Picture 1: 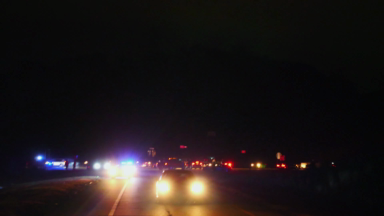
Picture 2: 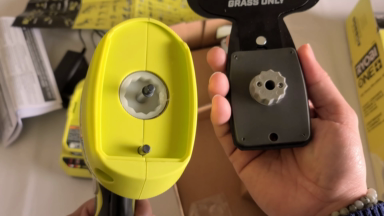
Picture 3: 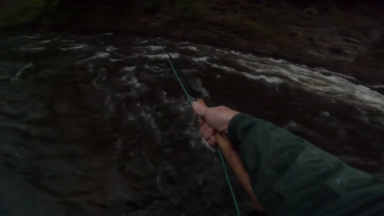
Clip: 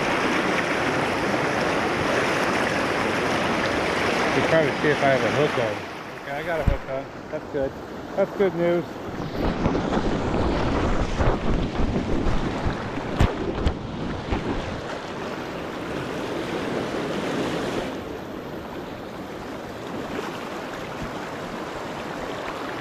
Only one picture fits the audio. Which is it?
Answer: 3